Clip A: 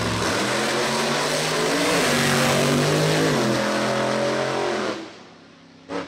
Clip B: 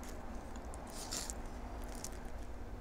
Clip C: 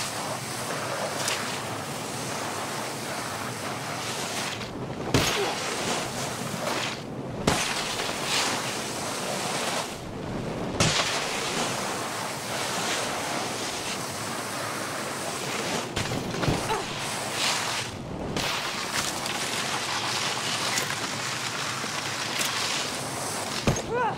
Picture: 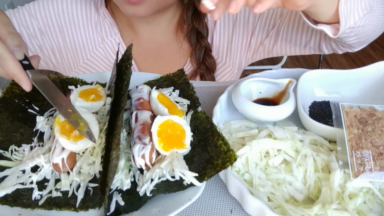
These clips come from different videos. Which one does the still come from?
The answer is B